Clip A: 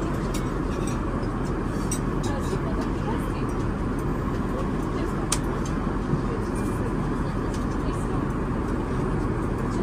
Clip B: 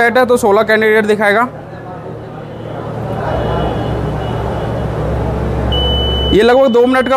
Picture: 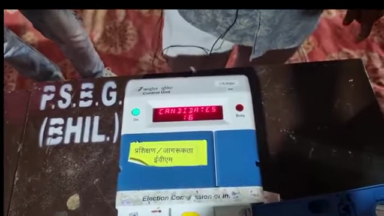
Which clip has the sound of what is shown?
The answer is B